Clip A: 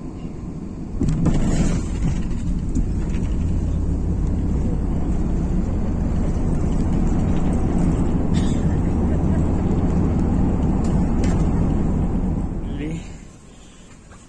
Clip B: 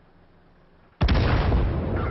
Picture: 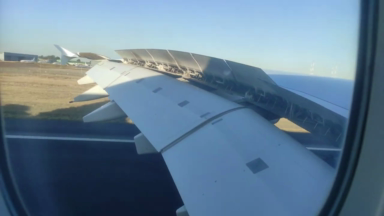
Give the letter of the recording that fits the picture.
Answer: A